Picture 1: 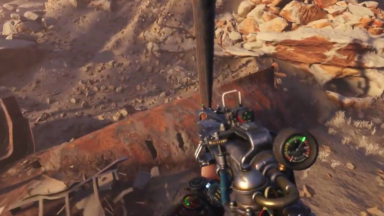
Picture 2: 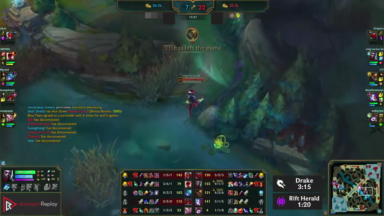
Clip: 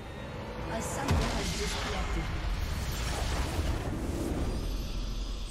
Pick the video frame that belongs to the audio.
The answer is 2